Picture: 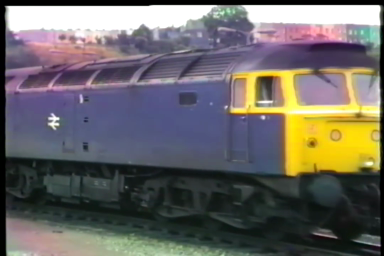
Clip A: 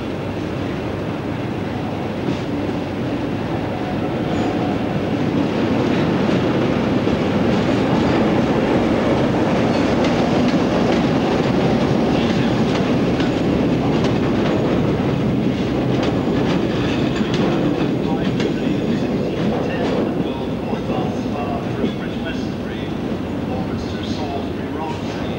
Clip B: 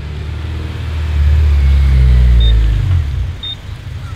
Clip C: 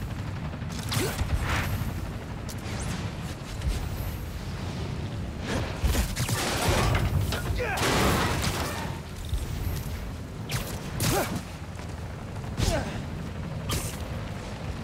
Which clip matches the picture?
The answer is A